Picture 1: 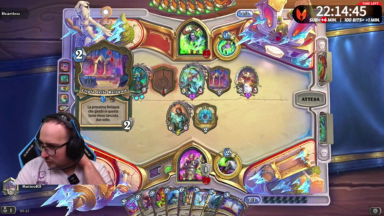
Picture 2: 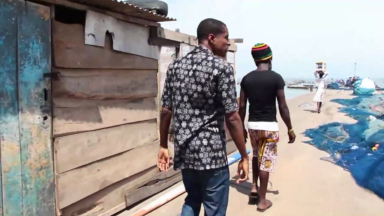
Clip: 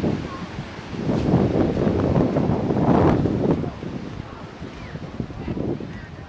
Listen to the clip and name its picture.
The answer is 2